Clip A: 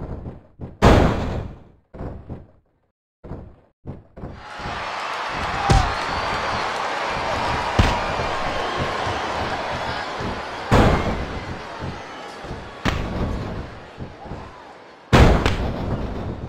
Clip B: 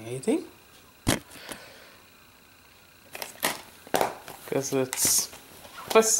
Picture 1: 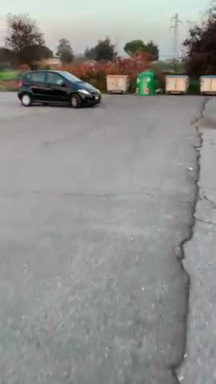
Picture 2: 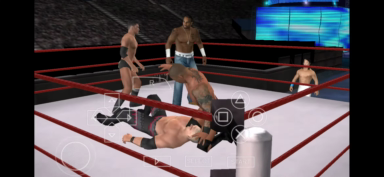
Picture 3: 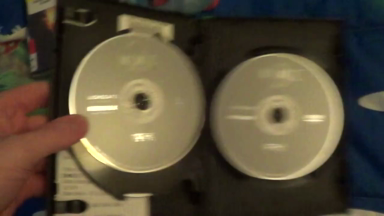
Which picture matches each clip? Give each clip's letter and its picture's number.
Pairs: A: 2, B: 3